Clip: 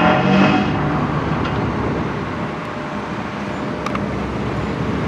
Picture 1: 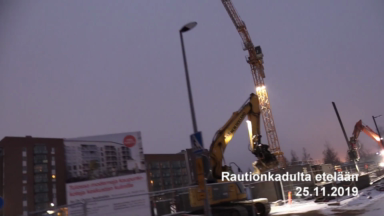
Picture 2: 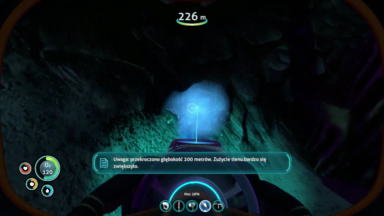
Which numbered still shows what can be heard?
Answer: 1